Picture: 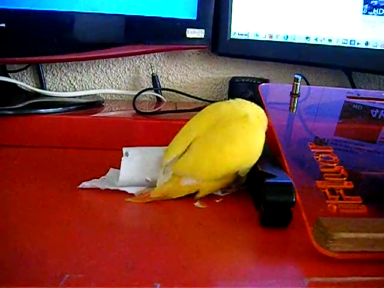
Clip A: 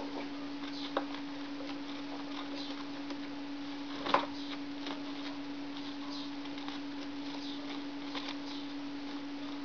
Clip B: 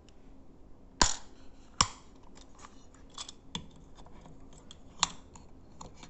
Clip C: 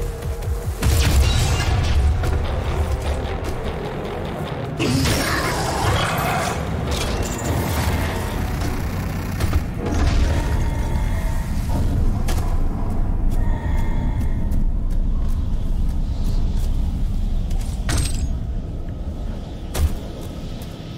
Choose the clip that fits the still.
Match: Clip A